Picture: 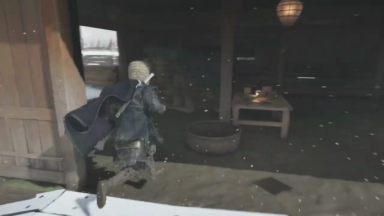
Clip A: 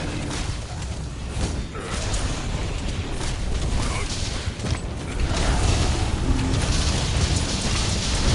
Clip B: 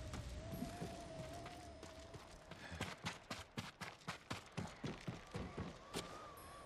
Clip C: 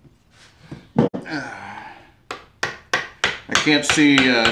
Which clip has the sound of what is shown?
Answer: B